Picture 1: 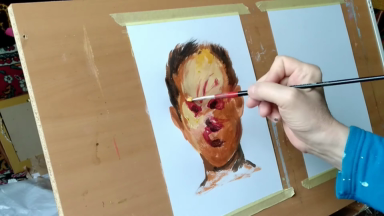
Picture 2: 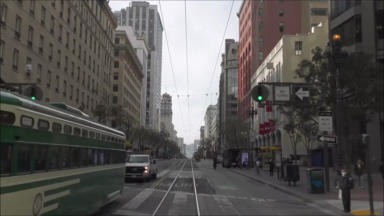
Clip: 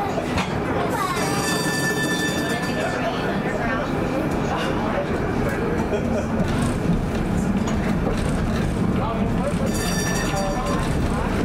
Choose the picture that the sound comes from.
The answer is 2